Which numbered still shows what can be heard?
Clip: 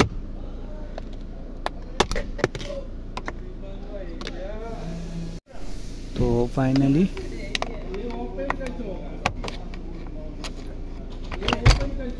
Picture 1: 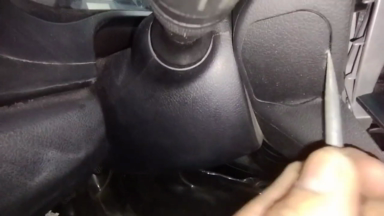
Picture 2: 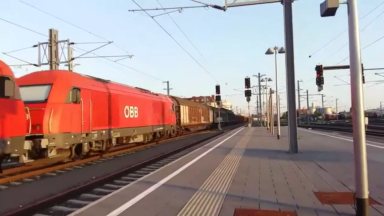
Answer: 1